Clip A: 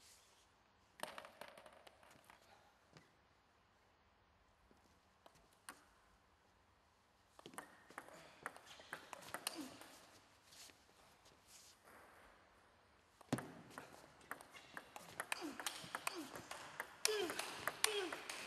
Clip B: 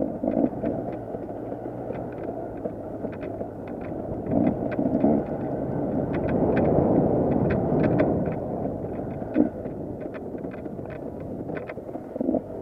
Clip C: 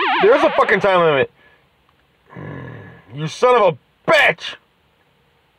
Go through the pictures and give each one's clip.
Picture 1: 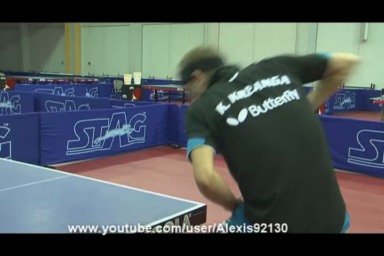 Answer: A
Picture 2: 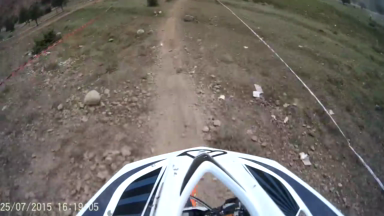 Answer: B